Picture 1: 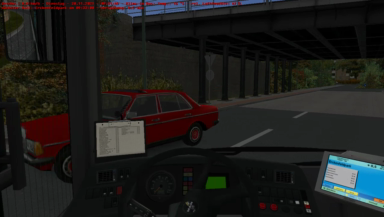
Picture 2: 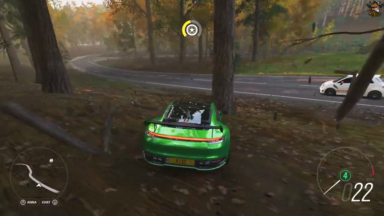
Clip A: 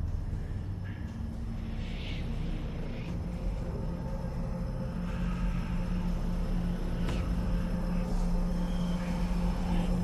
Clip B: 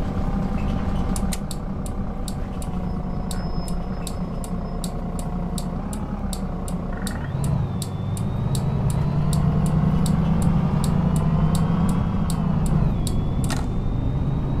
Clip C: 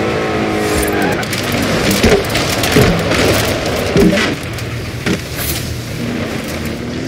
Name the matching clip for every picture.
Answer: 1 B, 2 C